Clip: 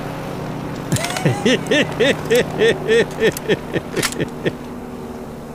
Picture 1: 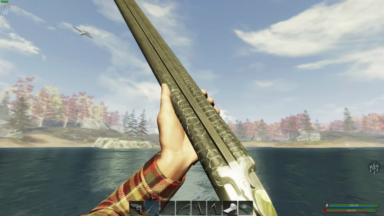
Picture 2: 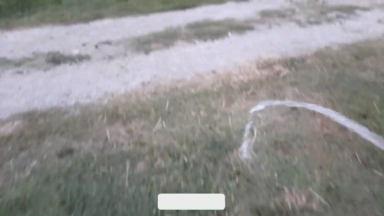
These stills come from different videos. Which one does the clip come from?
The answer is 1